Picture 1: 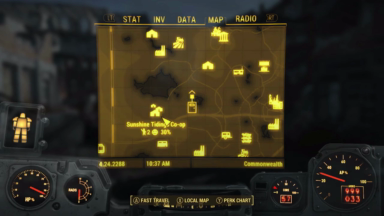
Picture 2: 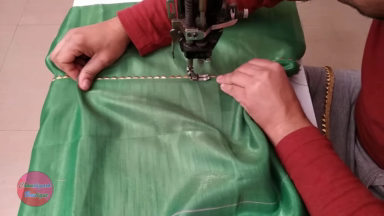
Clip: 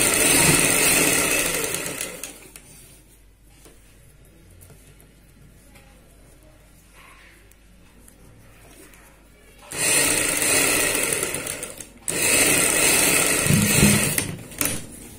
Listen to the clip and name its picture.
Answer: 2